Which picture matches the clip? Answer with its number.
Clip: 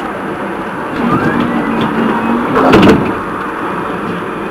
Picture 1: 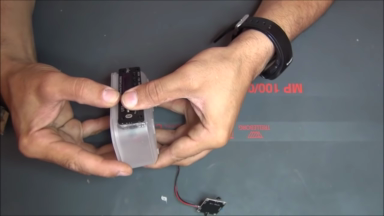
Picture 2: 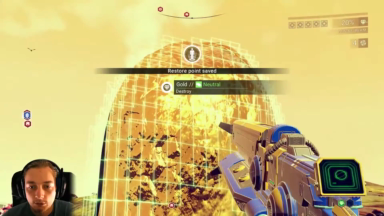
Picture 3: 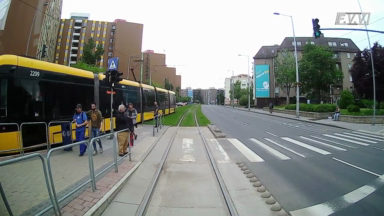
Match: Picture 3